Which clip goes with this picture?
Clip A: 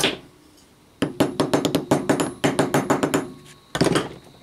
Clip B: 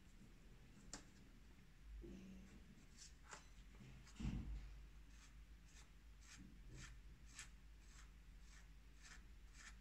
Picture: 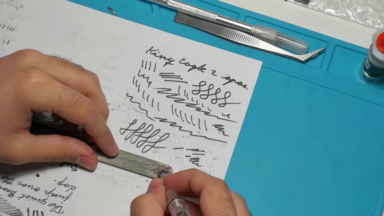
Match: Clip B